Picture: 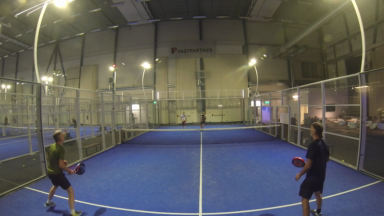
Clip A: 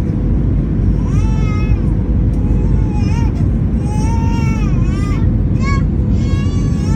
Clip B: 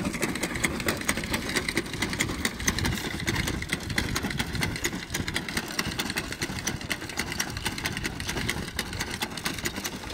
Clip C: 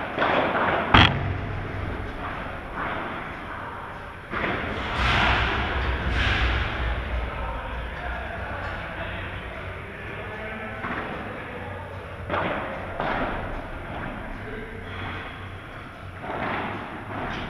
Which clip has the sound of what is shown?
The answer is C